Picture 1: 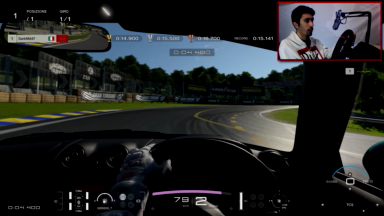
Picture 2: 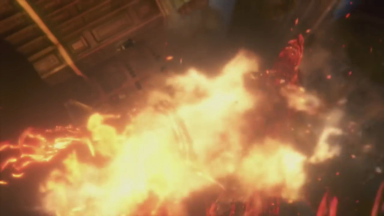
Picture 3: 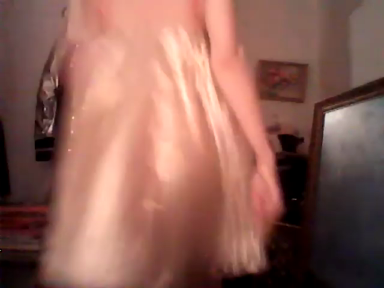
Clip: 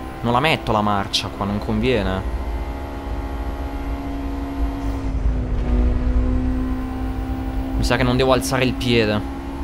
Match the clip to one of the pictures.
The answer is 1